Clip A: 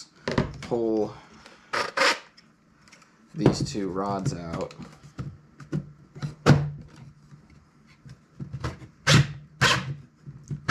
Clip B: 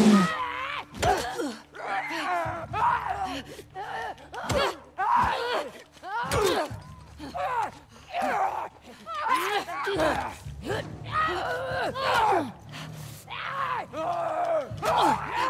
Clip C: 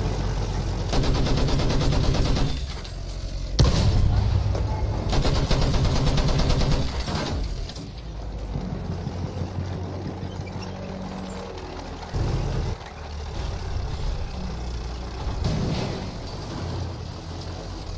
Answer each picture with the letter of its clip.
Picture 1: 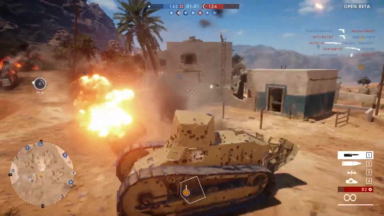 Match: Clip C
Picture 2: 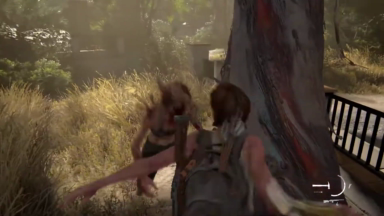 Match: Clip B